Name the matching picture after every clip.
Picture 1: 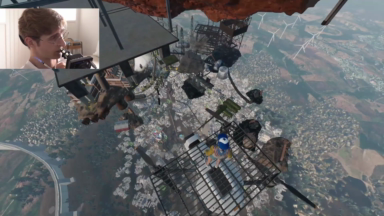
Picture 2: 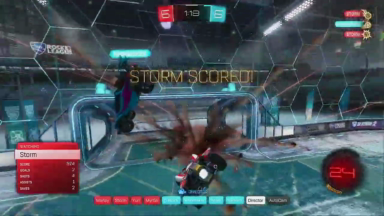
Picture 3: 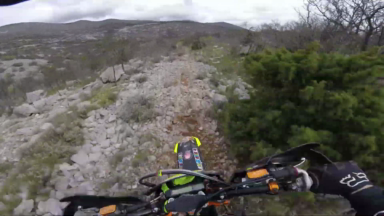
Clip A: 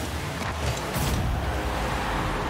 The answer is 2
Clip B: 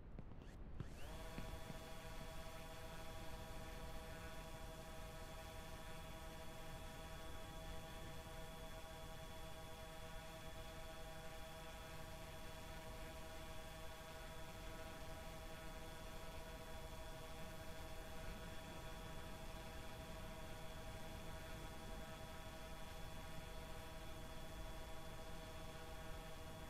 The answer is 1